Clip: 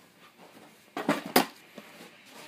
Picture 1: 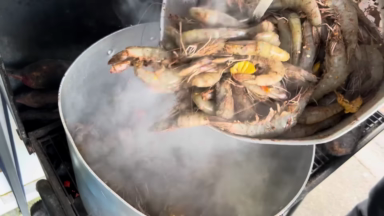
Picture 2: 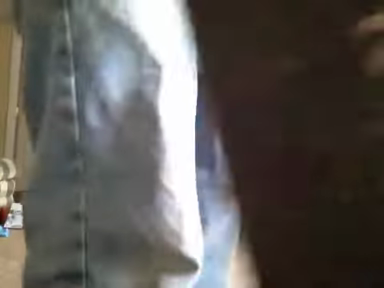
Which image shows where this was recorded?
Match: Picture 2